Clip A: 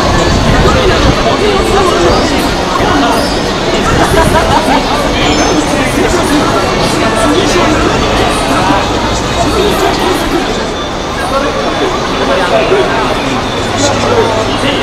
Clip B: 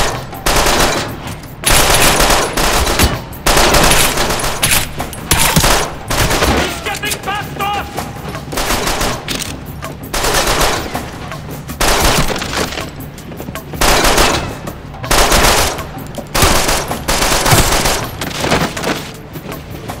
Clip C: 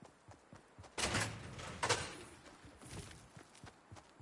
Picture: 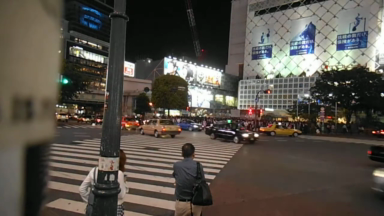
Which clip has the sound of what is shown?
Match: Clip A